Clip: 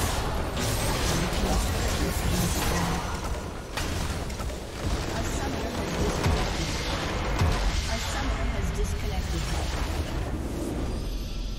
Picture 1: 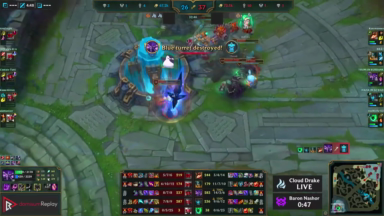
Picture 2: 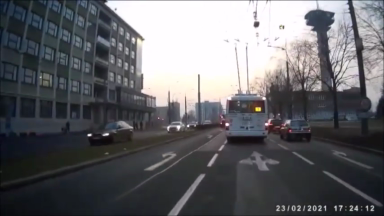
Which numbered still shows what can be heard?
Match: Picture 1